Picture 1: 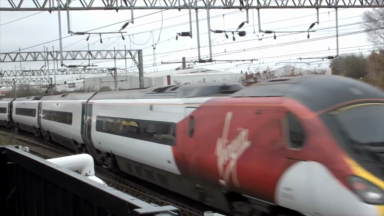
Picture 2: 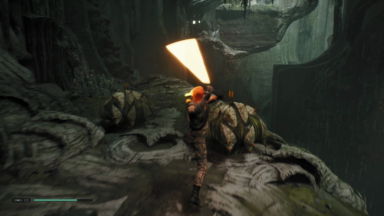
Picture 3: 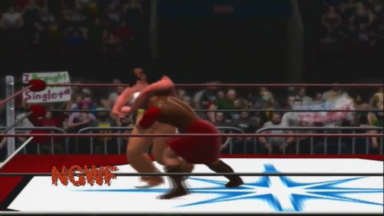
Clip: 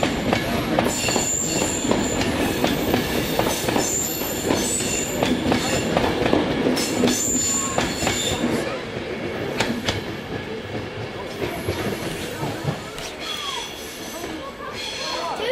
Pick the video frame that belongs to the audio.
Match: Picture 1